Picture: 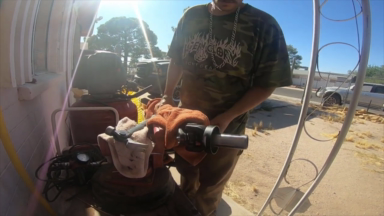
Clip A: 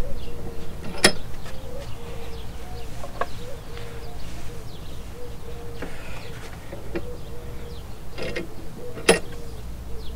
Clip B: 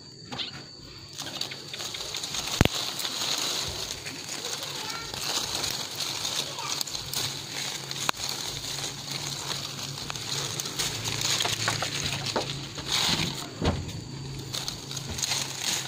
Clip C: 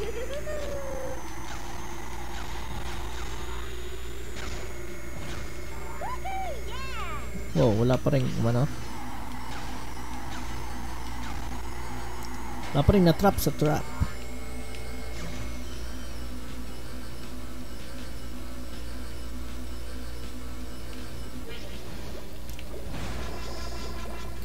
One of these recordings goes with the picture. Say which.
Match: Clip A